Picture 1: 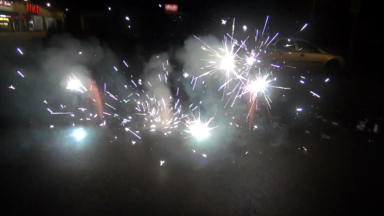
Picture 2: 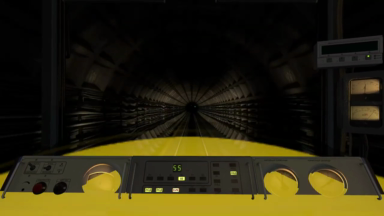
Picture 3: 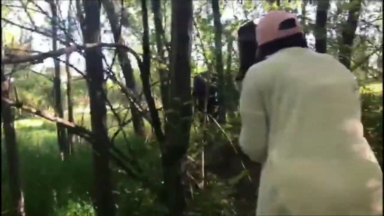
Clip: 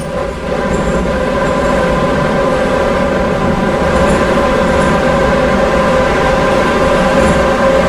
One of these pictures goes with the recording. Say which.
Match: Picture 2